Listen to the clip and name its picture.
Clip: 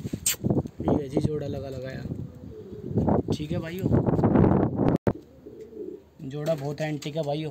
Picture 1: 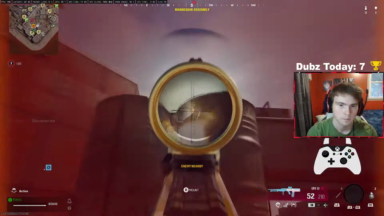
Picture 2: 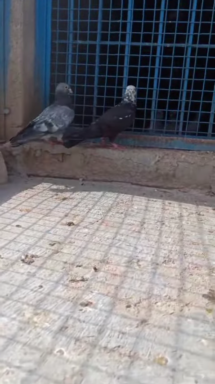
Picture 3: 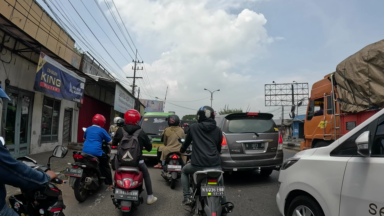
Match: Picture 2